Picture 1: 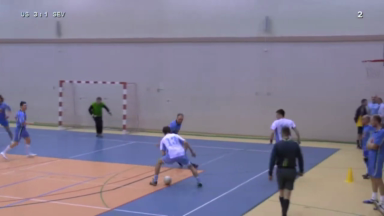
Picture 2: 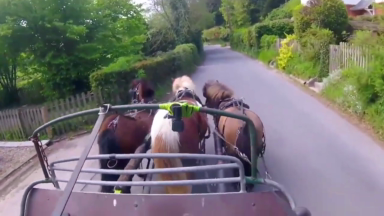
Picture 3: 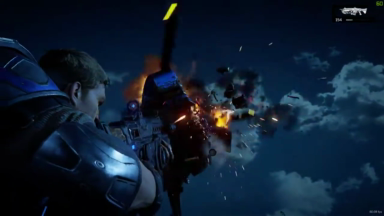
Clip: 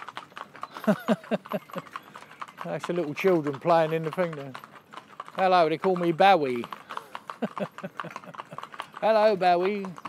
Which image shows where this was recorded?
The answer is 2